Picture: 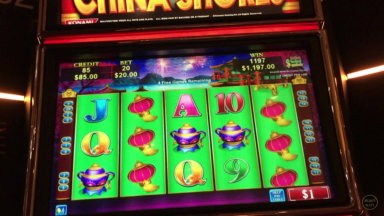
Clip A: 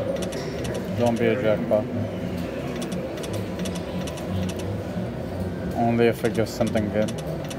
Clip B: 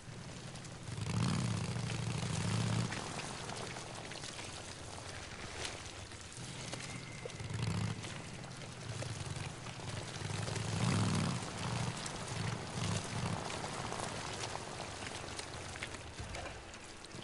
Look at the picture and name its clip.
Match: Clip A